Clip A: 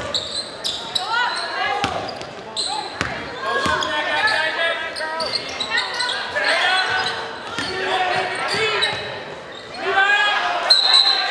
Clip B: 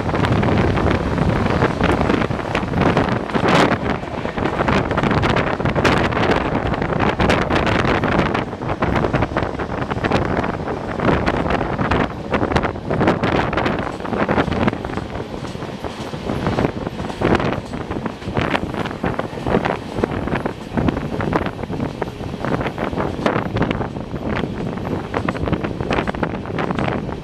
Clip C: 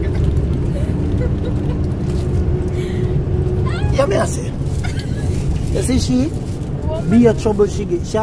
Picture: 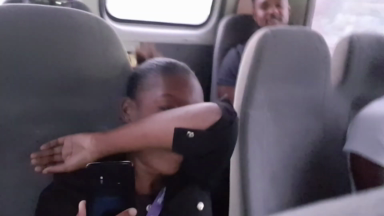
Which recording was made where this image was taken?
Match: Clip C